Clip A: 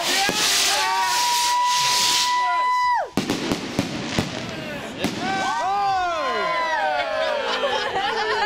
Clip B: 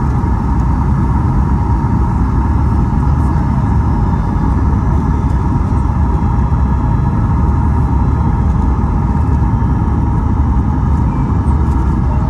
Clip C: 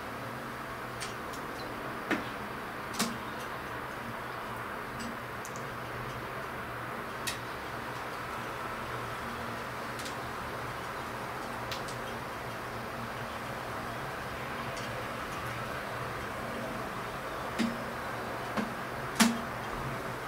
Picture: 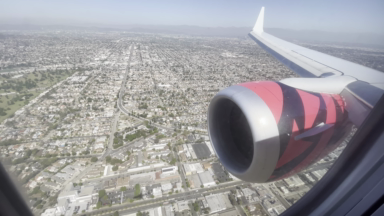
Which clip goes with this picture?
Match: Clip B